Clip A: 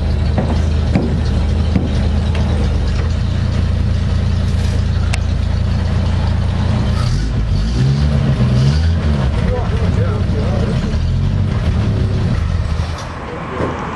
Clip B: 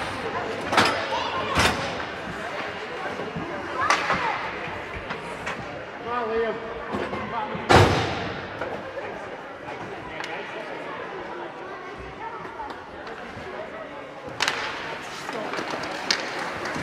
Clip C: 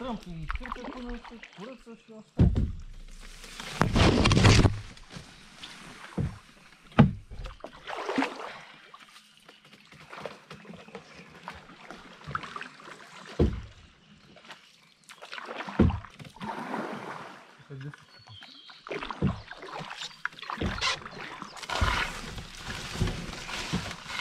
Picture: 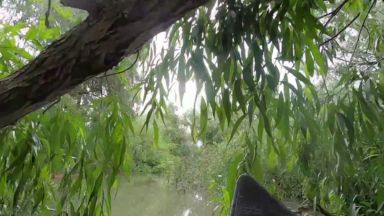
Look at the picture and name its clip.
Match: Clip C